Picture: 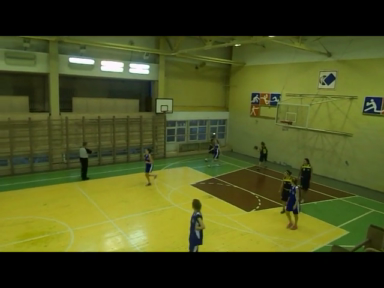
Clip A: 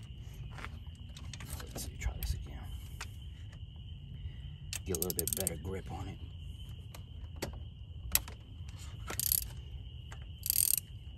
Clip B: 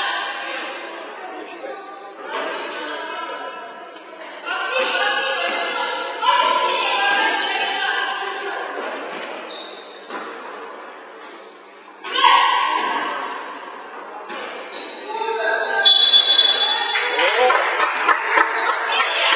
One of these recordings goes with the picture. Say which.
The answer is B